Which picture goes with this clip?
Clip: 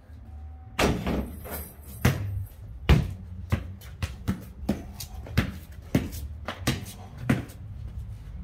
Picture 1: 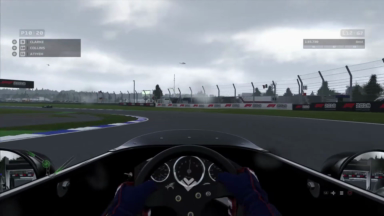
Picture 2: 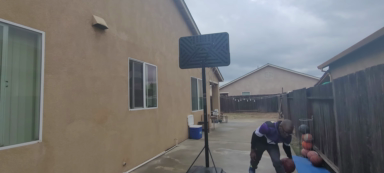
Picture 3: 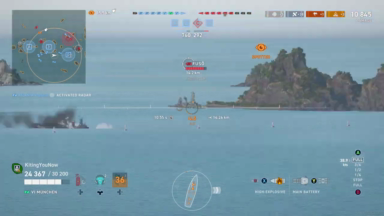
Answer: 2